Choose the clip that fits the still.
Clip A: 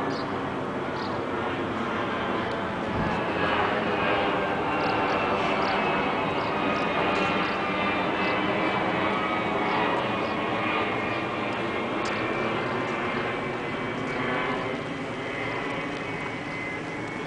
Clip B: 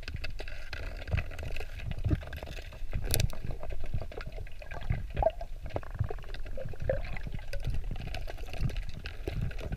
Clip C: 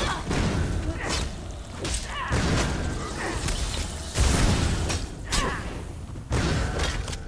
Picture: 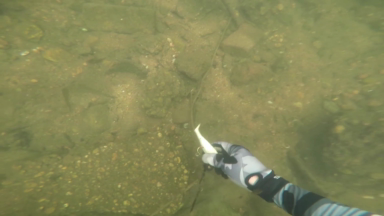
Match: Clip B